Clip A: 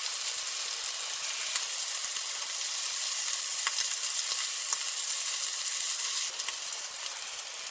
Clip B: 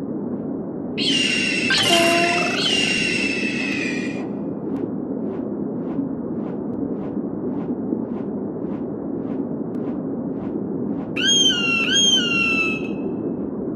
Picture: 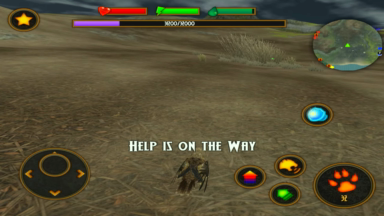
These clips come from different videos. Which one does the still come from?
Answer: B